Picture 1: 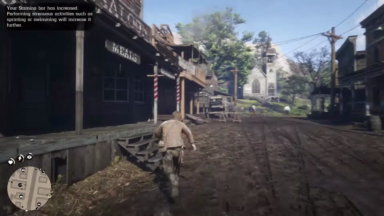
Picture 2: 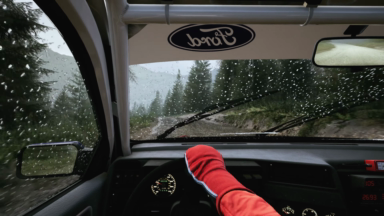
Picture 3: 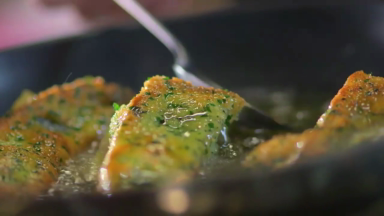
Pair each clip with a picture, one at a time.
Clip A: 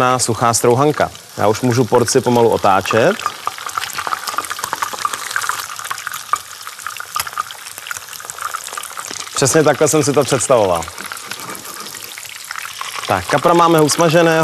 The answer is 3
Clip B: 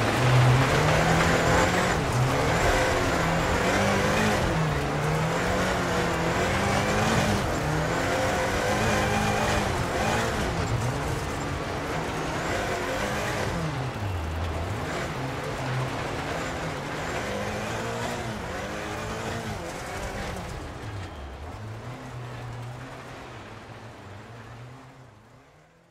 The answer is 2